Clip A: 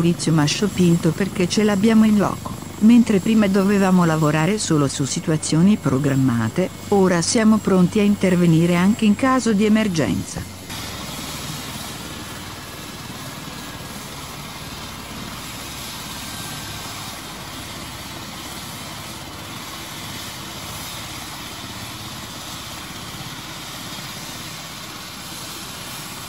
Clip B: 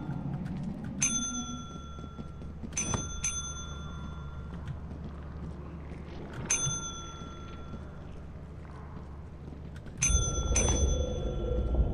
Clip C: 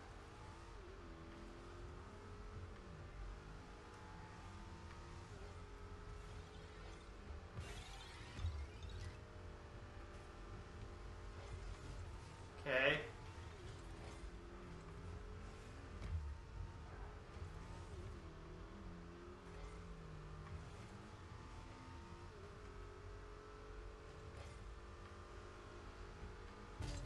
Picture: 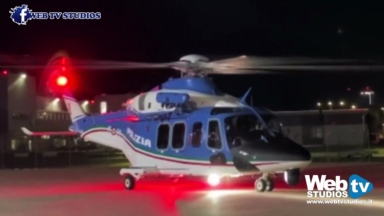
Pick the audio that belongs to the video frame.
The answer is A